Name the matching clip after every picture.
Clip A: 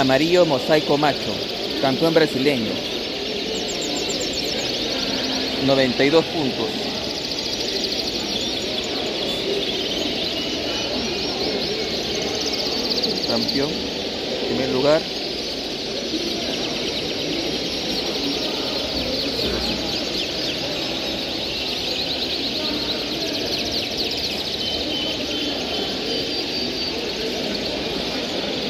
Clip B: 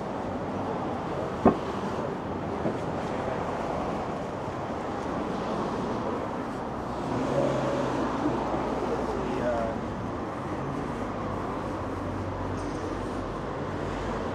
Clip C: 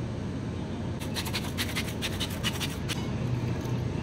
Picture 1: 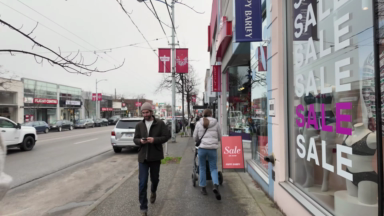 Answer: B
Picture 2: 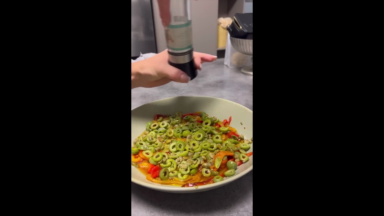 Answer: C